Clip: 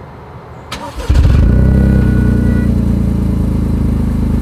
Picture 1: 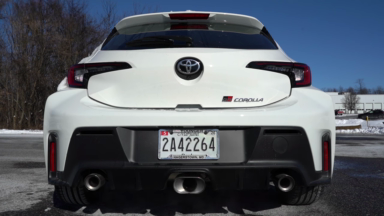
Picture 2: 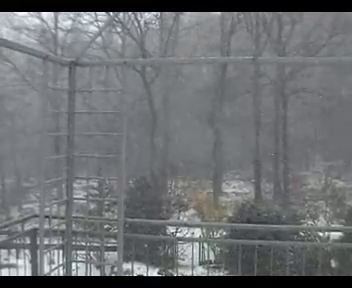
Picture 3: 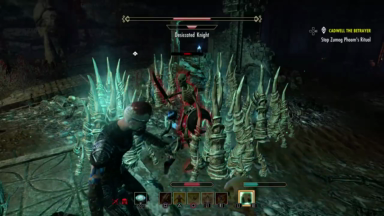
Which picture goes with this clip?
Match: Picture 1